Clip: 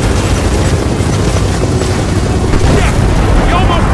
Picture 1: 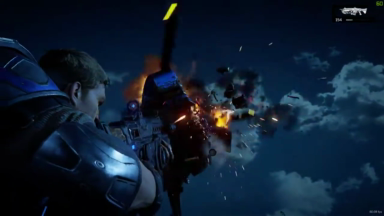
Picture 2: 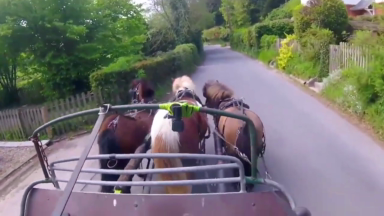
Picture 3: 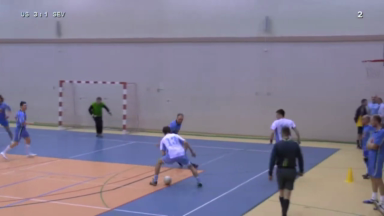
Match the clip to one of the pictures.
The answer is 1